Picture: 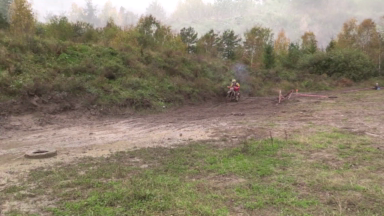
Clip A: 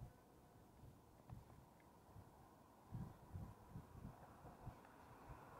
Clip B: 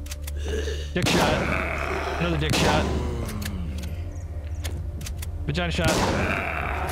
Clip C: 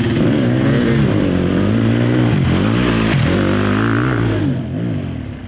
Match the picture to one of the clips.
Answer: C